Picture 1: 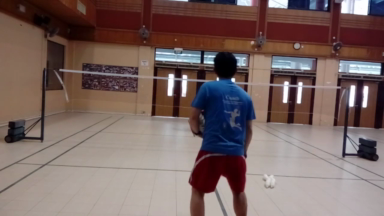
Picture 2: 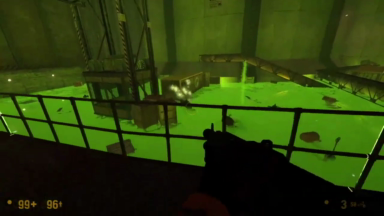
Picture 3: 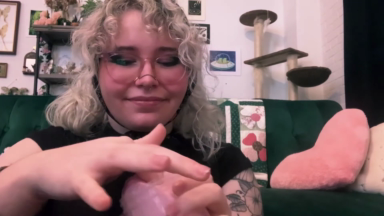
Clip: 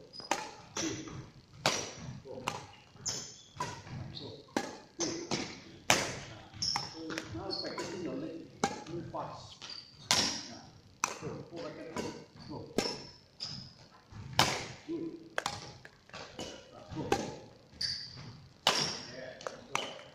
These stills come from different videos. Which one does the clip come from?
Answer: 1